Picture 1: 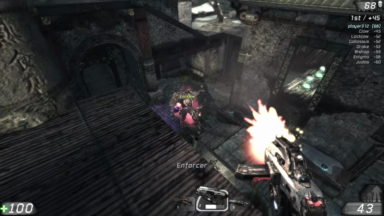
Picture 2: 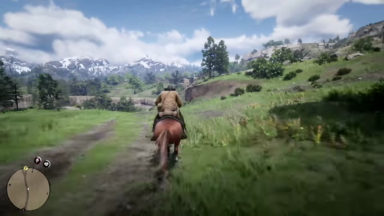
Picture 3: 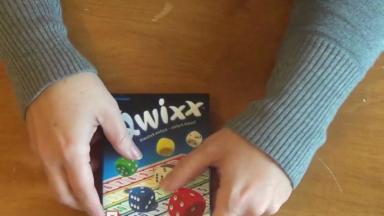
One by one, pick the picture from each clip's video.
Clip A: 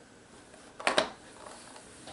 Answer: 3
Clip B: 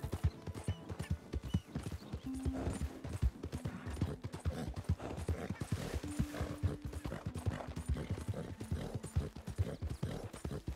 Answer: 2